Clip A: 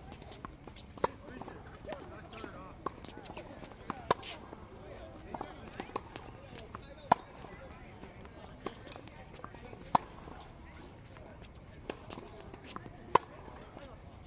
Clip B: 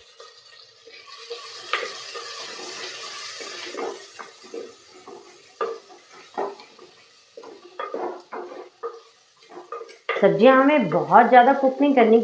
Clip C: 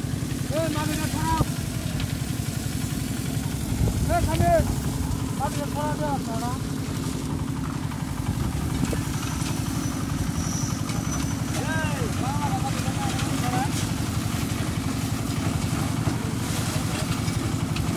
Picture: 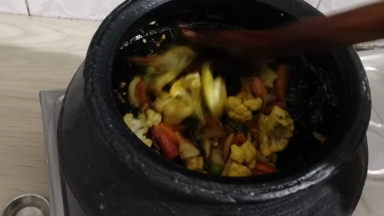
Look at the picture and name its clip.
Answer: B